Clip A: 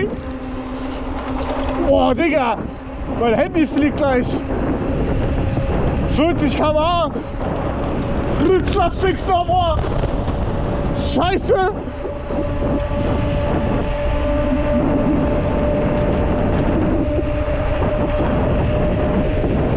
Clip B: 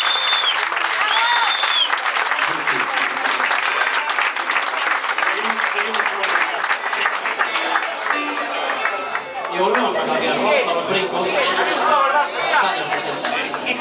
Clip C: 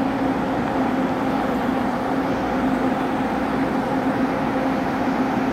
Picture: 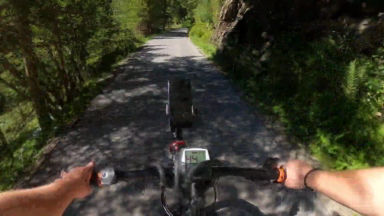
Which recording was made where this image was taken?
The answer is A